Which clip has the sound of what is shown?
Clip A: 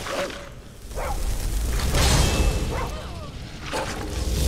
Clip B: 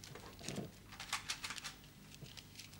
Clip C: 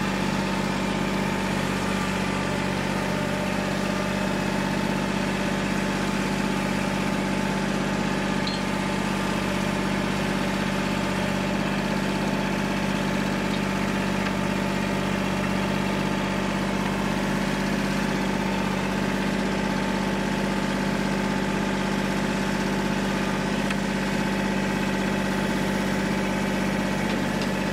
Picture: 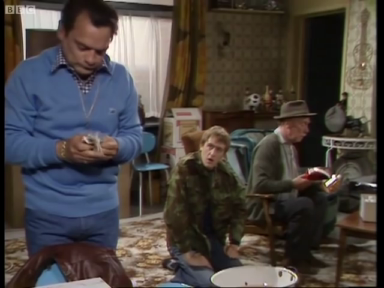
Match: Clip B